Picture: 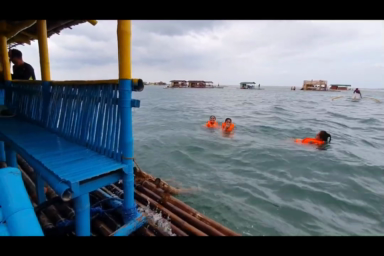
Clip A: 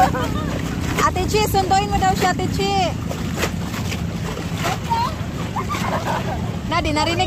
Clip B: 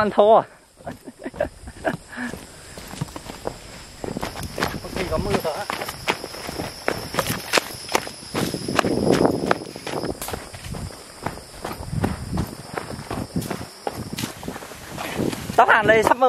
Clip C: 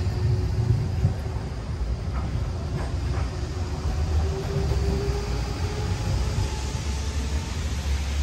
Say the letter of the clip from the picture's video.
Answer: A